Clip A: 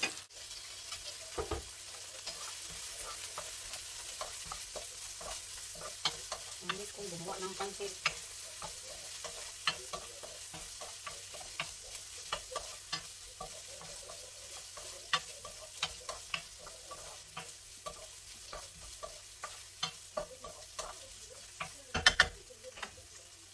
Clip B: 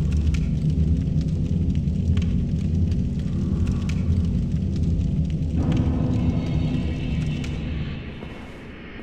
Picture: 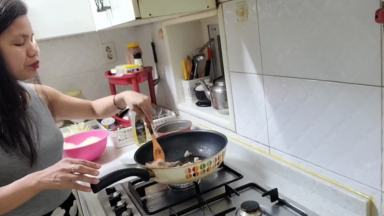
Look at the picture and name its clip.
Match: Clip A